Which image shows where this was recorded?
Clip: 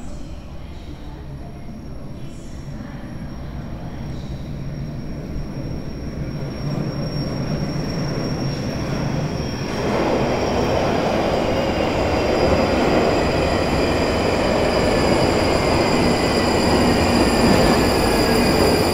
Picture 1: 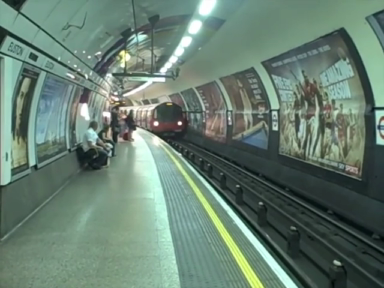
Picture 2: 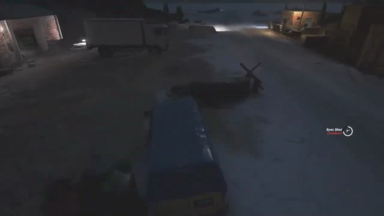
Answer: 1